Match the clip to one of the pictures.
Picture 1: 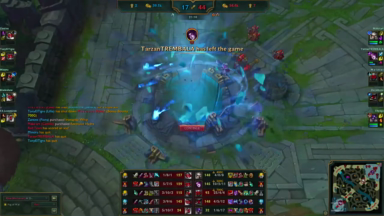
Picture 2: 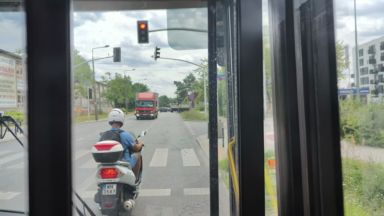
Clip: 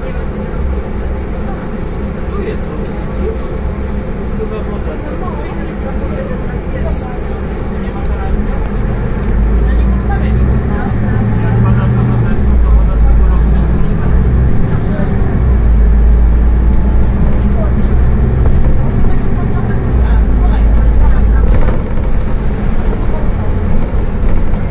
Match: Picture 2